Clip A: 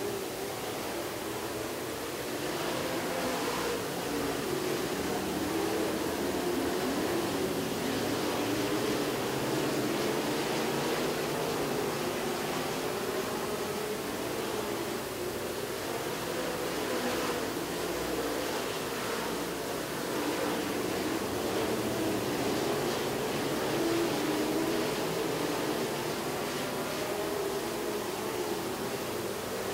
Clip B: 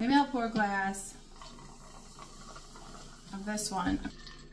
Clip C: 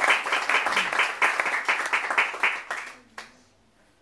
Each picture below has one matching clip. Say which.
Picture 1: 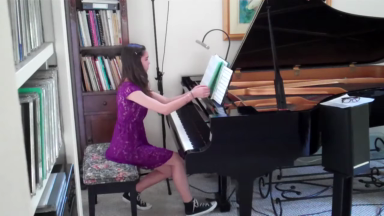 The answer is C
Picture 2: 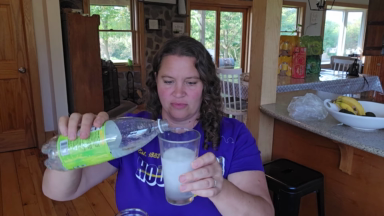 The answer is B